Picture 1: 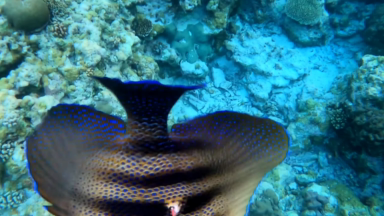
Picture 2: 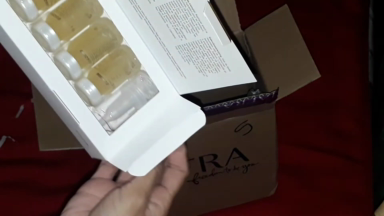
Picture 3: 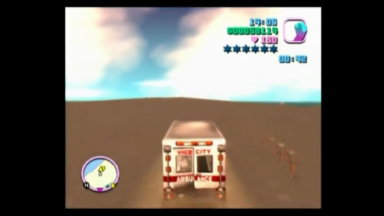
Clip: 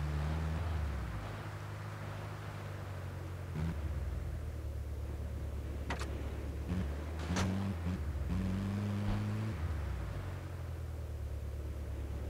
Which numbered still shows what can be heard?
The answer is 3